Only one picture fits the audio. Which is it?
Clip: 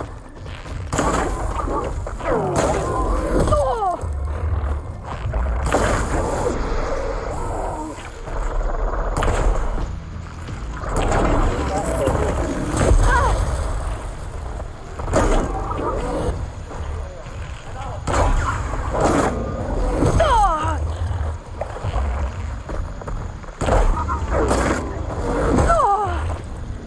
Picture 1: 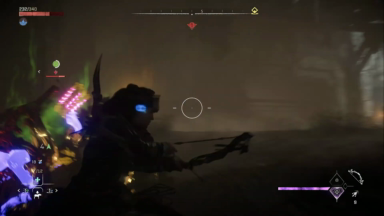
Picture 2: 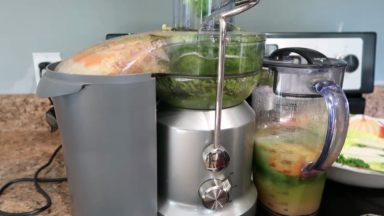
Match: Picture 1